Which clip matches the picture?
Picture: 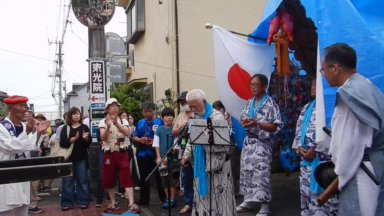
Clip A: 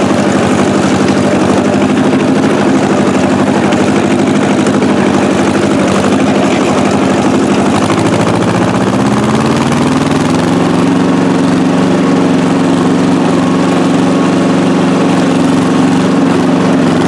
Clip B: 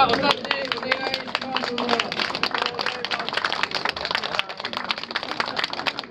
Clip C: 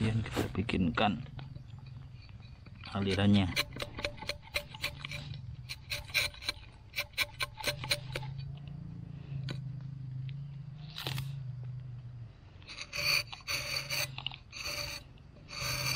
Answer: B